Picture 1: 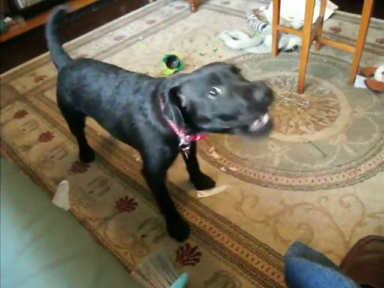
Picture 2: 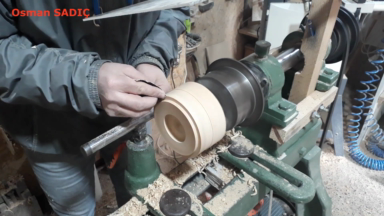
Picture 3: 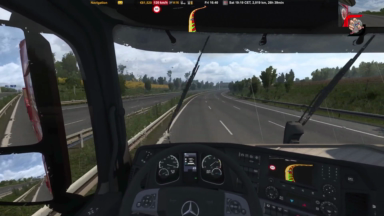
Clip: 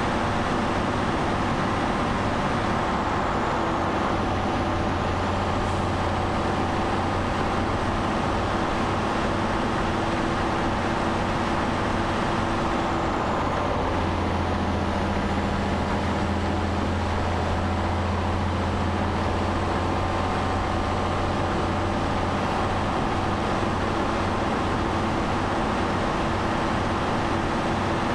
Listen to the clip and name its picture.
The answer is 3